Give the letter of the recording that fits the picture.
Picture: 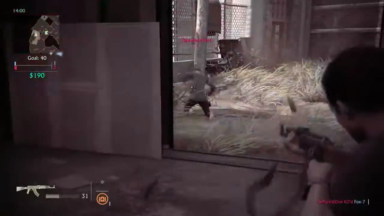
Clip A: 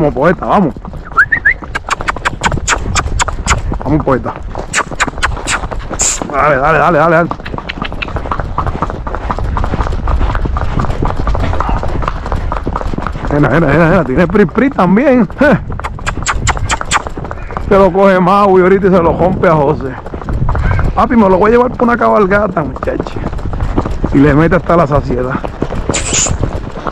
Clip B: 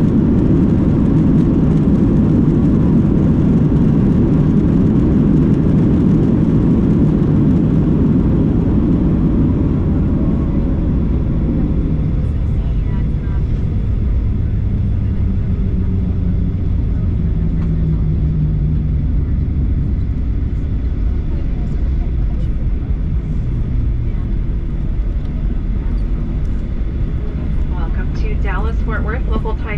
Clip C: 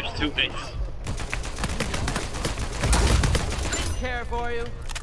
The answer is C